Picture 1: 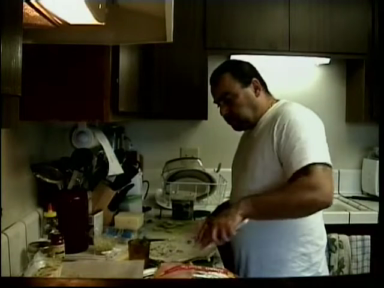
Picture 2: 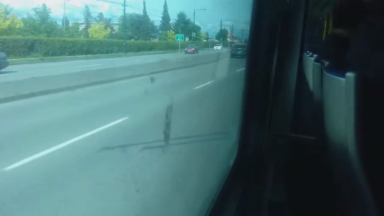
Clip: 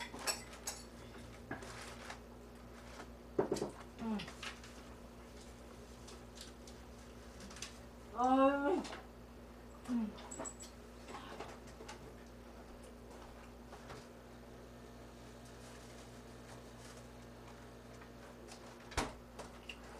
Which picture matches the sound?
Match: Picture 1